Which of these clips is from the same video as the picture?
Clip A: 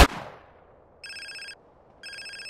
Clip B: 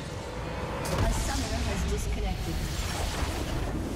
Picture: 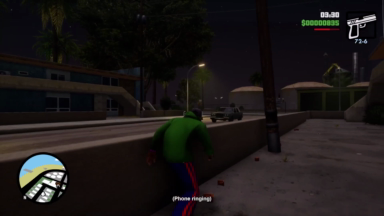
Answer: A